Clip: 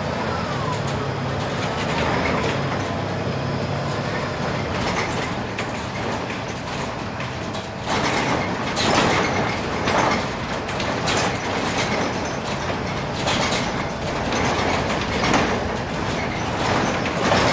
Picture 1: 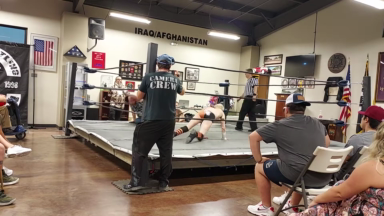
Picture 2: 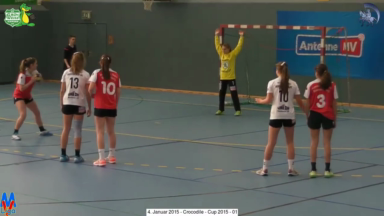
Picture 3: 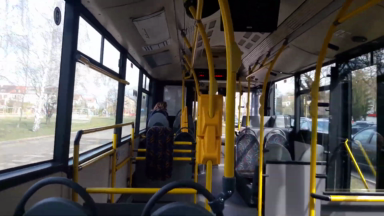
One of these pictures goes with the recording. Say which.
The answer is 3